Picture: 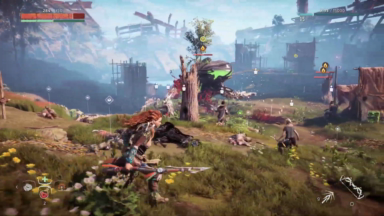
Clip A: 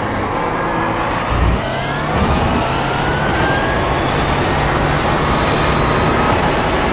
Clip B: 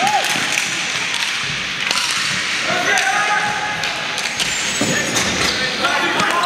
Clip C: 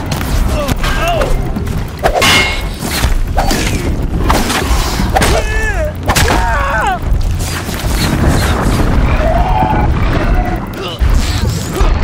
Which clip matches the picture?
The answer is C